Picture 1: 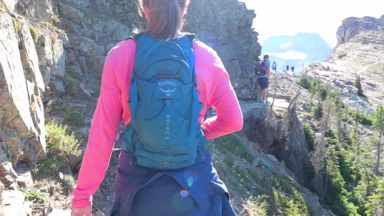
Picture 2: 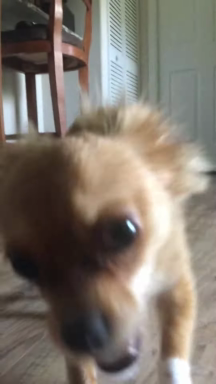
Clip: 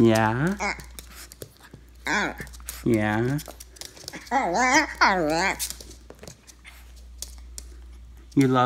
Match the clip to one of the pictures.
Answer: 2